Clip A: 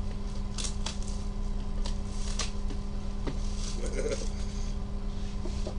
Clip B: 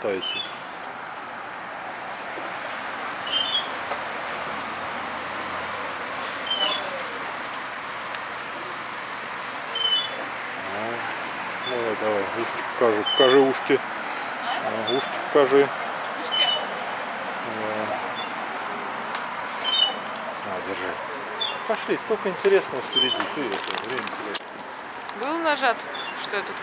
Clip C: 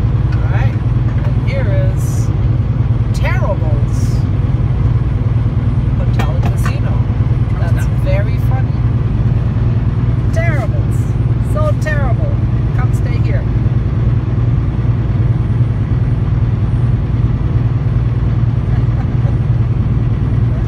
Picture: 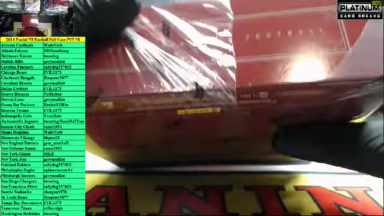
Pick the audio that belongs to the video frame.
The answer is A